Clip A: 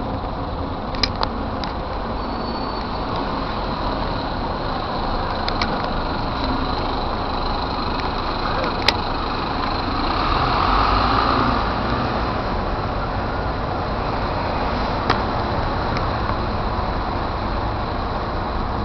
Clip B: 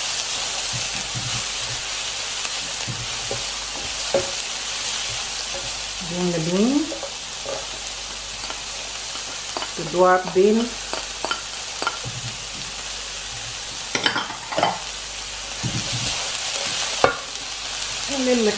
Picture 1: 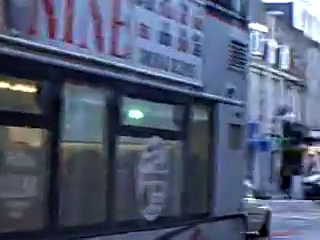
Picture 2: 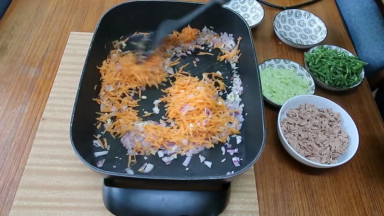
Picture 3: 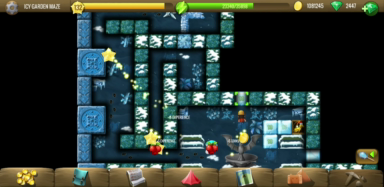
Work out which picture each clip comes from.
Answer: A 1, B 2